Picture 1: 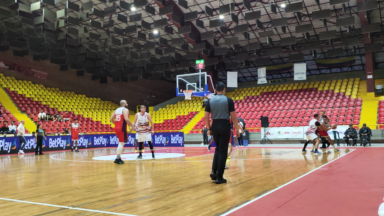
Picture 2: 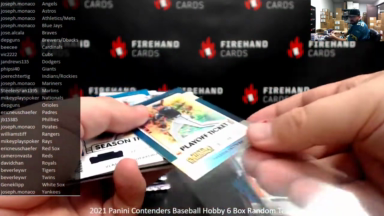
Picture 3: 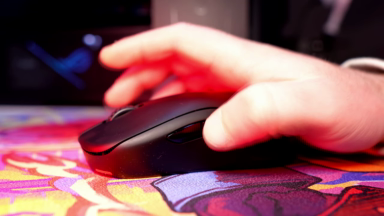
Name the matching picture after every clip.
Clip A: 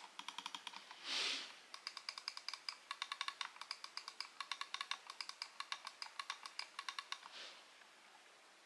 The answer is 3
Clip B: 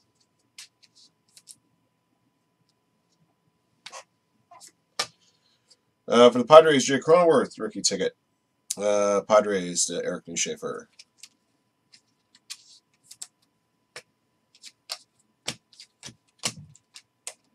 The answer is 2